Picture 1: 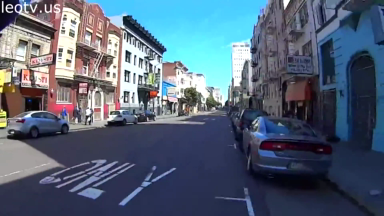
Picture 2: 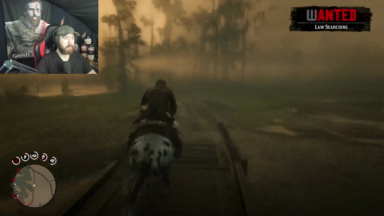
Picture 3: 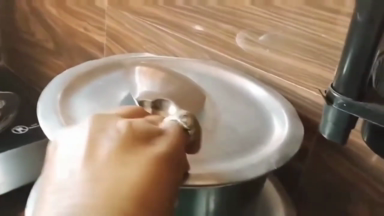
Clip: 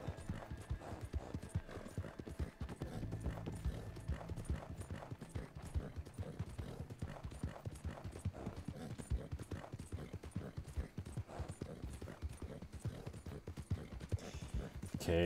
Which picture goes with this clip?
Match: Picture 2